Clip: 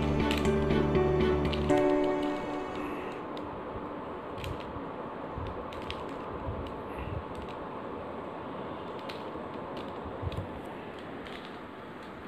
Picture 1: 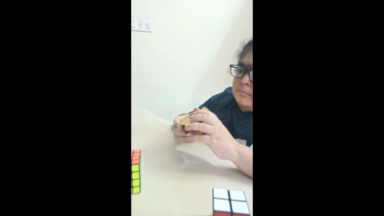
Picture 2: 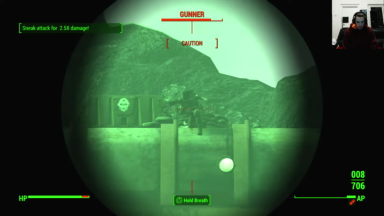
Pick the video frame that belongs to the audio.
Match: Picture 1